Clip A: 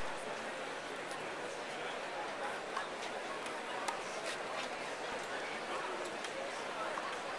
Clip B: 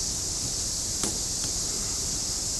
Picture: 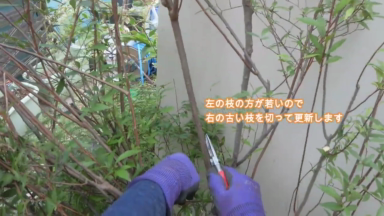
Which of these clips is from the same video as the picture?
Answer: B